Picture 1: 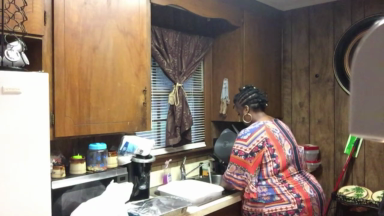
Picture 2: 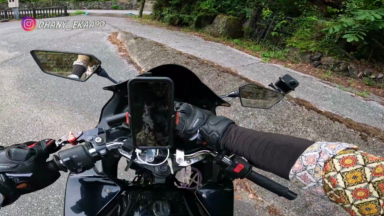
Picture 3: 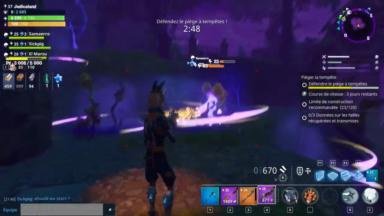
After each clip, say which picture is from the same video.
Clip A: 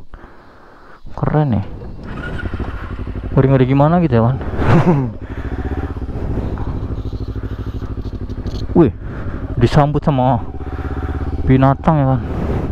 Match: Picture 2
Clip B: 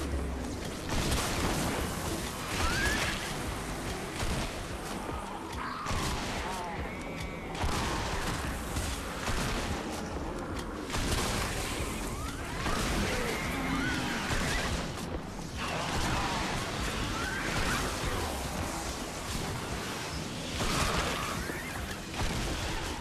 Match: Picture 3